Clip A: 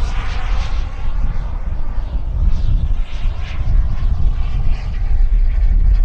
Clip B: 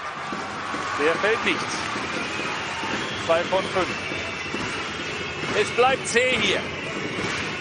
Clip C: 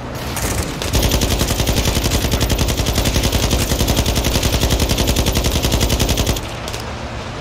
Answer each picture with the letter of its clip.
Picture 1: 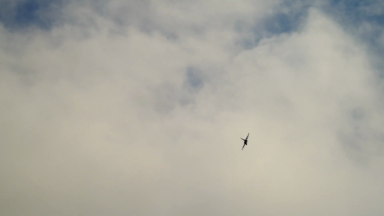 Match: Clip A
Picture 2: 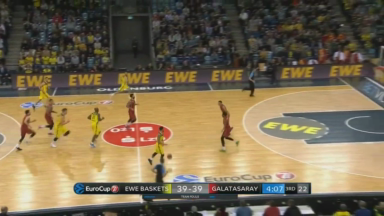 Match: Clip B